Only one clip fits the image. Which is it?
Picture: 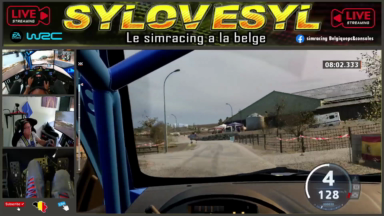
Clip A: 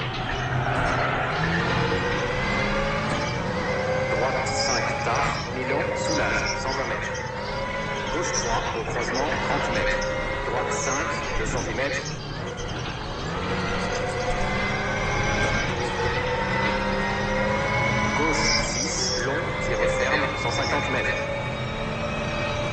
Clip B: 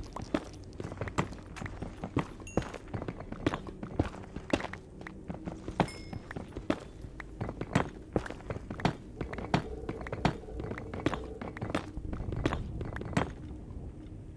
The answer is A